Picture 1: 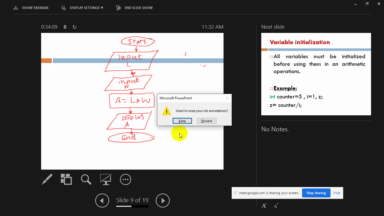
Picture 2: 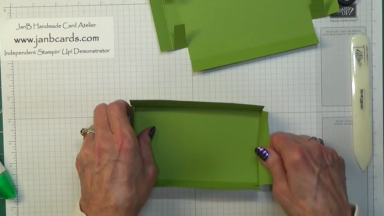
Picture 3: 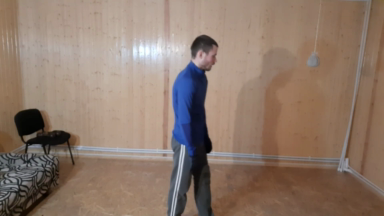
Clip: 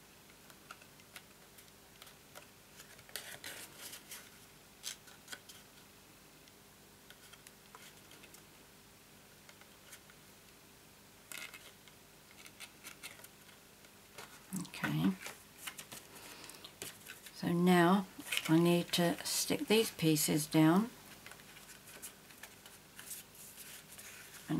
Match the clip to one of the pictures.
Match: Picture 2